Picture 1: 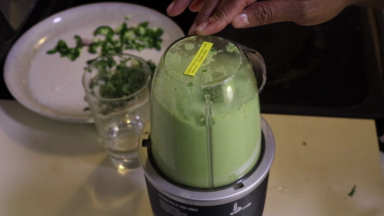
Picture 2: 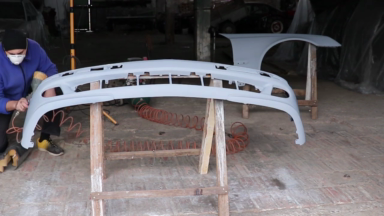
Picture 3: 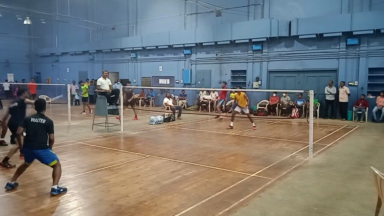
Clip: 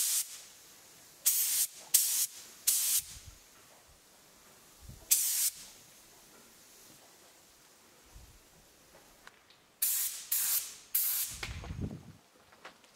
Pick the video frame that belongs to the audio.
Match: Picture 2